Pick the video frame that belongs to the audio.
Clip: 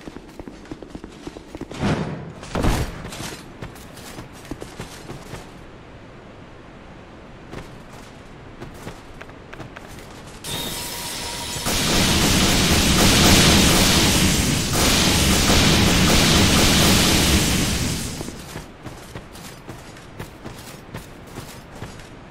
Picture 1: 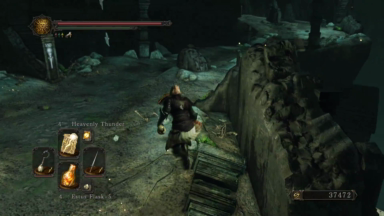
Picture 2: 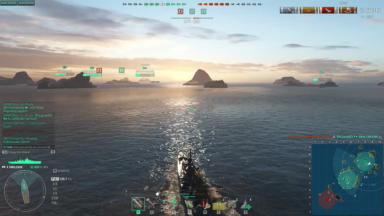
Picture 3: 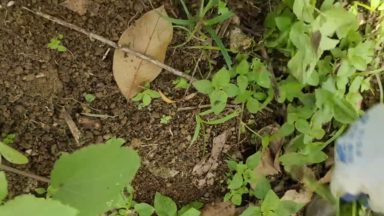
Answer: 1